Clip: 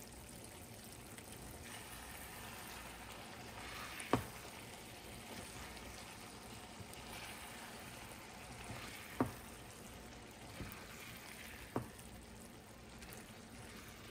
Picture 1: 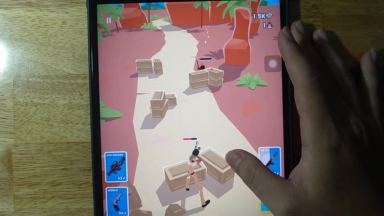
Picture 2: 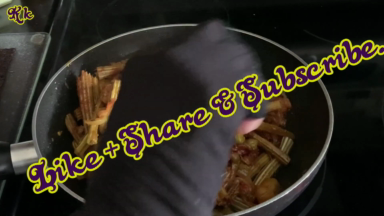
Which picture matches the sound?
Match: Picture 2